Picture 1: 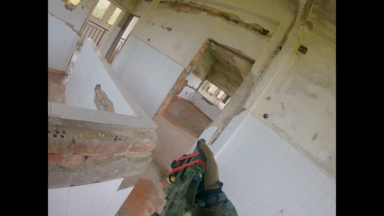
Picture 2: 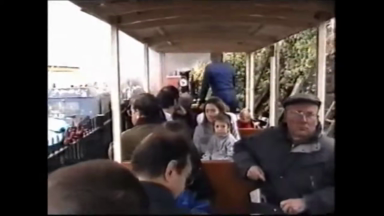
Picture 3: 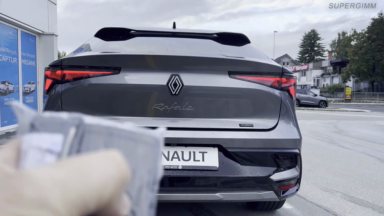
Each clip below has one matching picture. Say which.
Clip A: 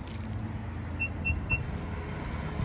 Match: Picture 3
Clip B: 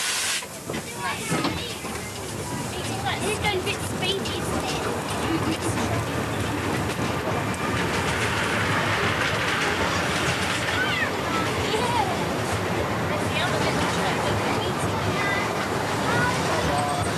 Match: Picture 2